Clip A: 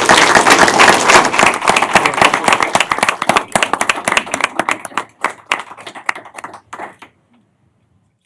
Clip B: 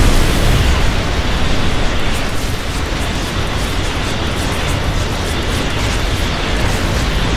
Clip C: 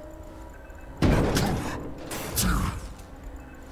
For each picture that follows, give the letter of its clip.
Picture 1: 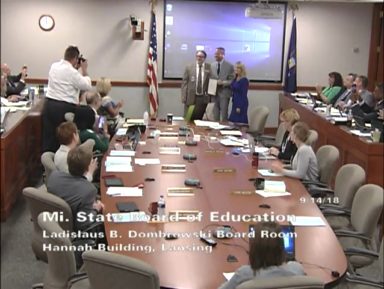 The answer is A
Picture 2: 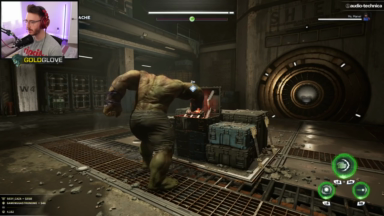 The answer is C